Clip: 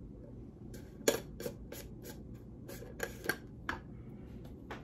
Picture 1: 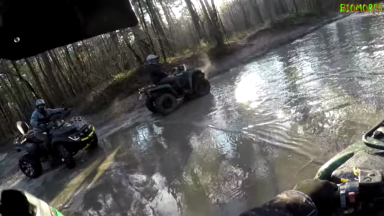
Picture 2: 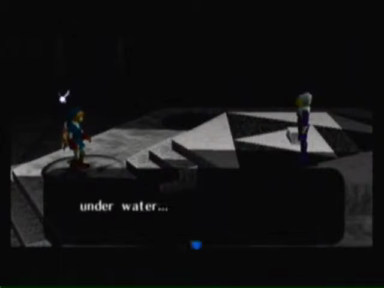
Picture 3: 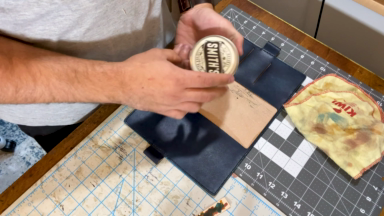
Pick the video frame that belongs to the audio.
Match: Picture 3